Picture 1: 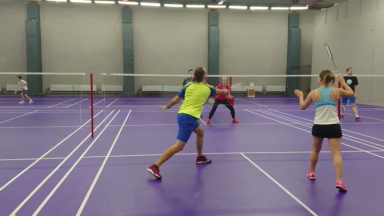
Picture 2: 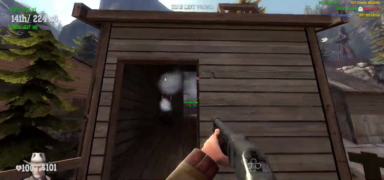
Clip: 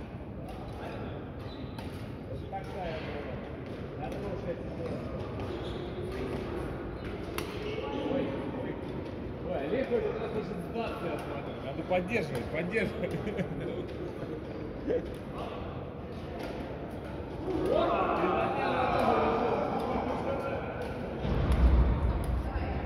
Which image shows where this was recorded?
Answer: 1